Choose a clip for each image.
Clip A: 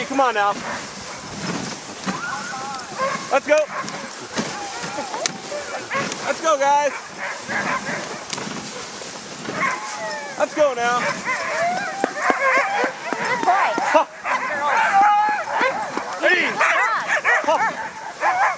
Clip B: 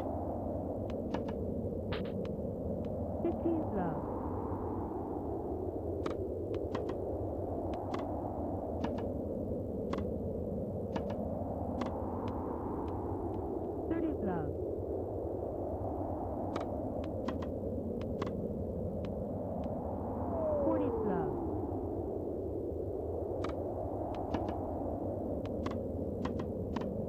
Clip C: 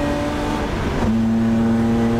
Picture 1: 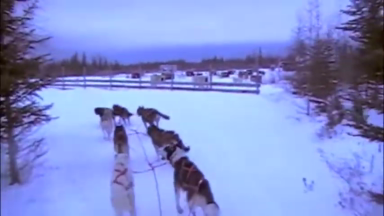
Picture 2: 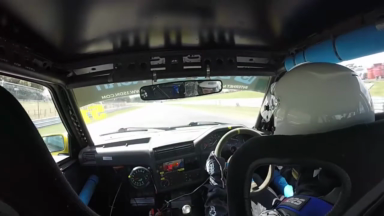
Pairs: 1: A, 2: C